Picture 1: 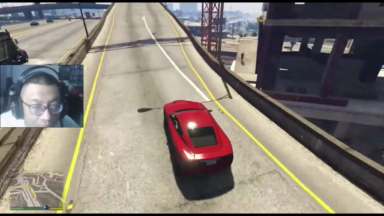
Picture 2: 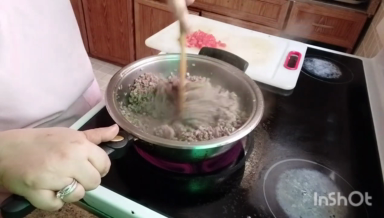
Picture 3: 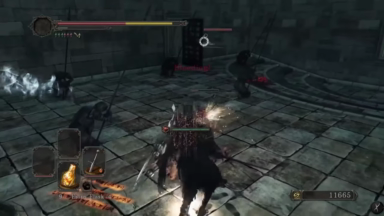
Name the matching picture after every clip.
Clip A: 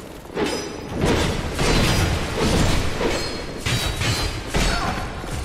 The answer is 3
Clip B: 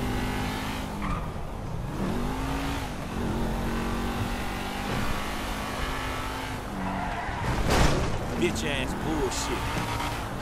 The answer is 1